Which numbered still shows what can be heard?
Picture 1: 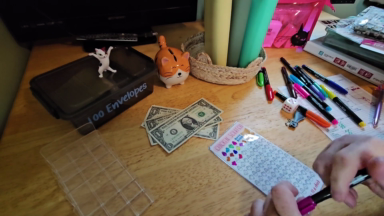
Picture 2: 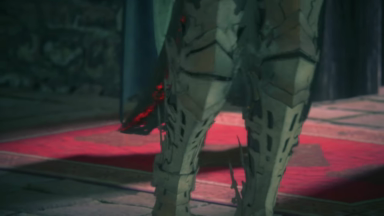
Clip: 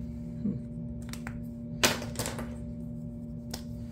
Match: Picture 1